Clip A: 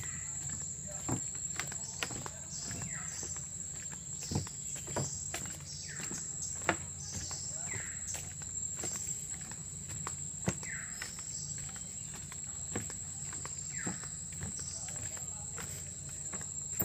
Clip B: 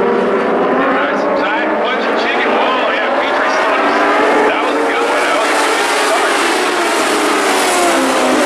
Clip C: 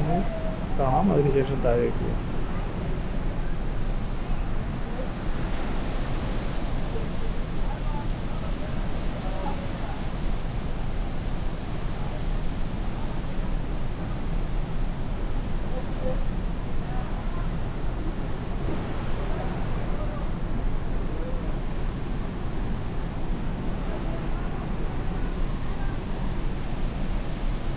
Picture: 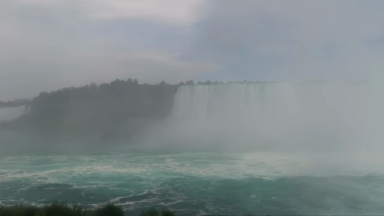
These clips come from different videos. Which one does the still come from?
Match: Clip C